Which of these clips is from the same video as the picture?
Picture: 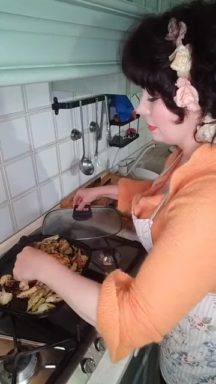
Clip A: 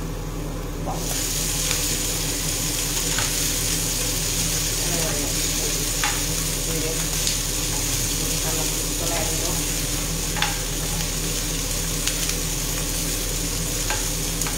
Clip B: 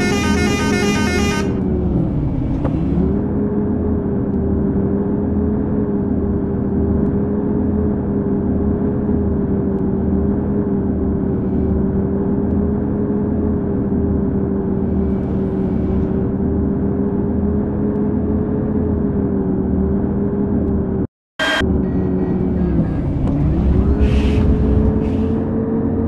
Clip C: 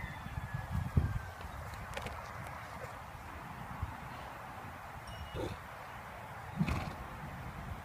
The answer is A